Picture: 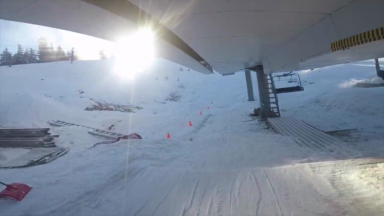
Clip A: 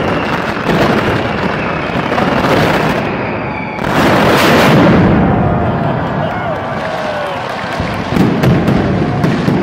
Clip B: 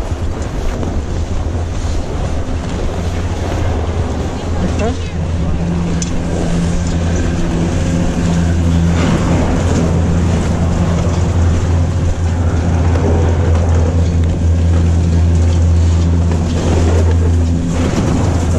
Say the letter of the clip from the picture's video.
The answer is B